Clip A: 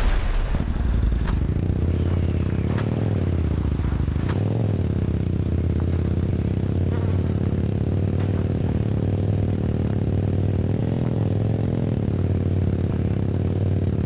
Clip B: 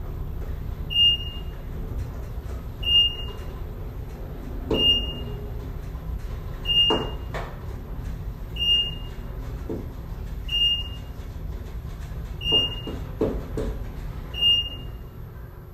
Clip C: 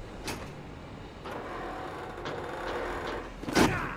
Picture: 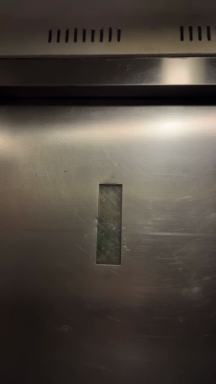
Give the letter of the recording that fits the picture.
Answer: B